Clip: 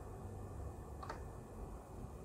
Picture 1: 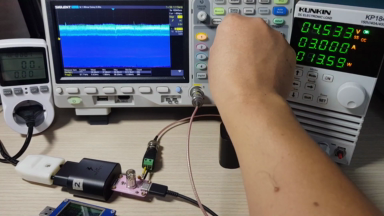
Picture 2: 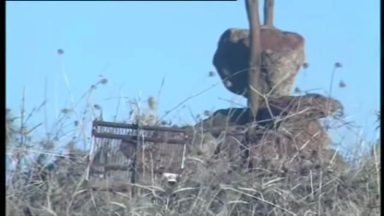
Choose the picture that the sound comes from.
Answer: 1